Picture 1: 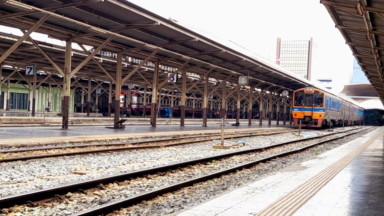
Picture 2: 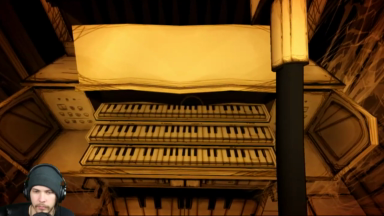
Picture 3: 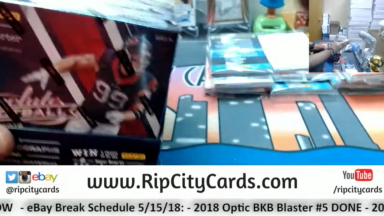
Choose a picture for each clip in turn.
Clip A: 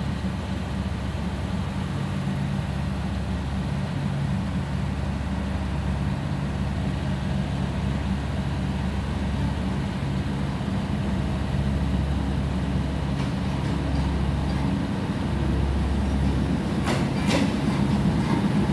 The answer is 1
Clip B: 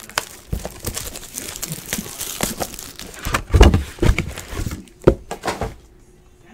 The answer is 3